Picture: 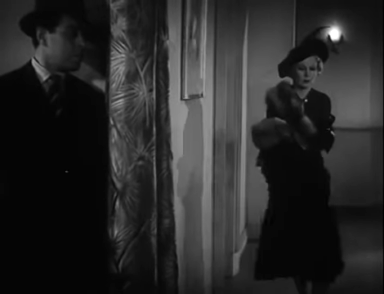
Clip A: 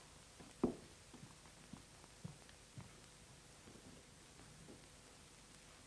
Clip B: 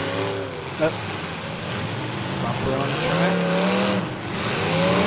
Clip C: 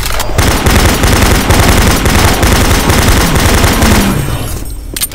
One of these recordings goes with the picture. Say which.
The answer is A